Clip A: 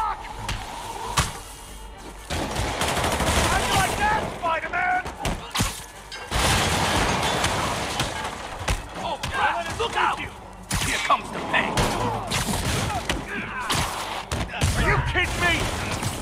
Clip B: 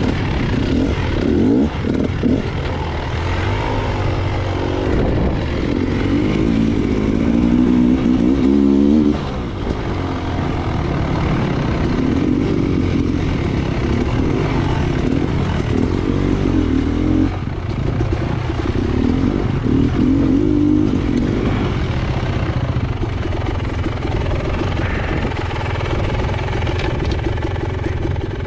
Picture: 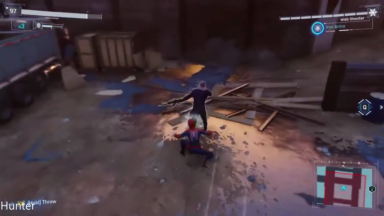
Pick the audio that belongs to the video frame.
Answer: A